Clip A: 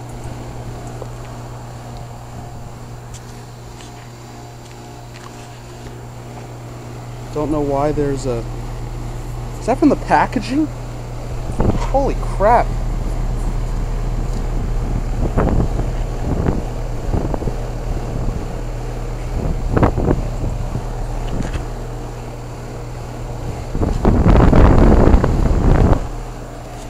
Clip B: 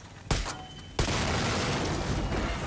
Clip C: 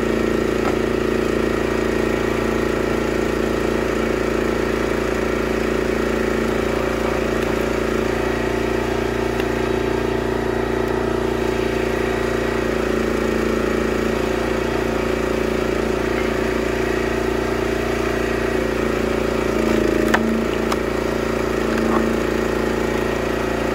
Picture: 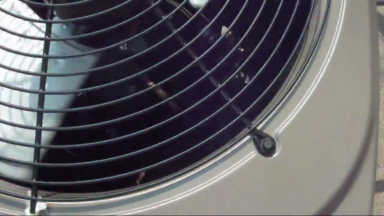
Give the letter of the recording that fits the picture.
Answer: A